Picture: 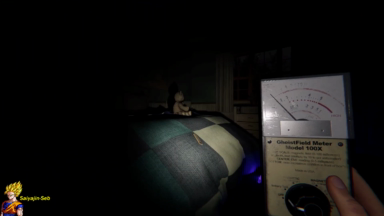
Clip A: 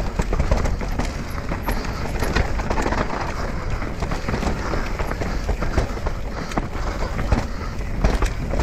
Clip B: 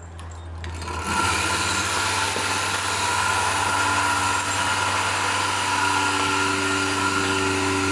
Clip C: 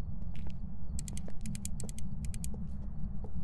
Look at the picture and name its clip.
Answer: C